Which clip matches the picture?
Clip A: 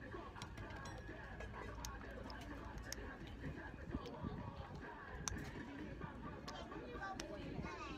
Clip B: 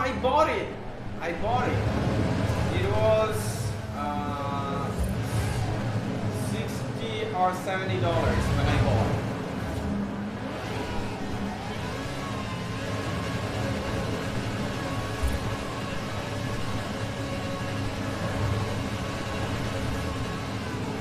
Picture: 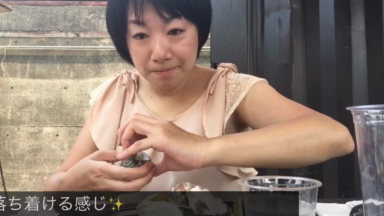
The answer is A